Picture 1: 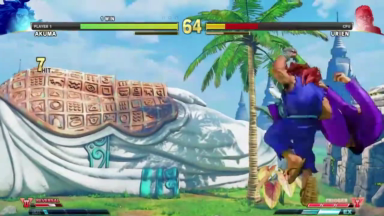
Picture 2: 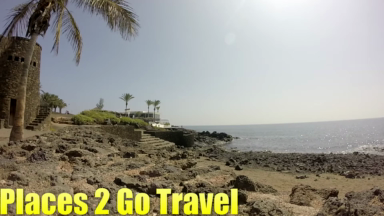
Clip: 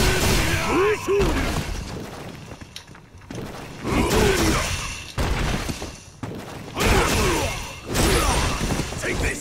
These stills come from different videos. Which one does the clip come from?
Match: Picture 1